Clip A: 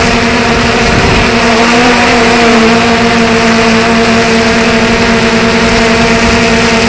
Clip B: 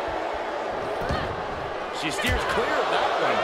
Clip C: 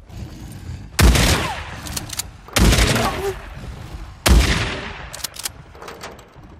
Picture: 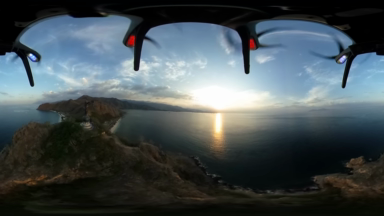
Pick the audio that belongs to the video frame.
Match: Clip A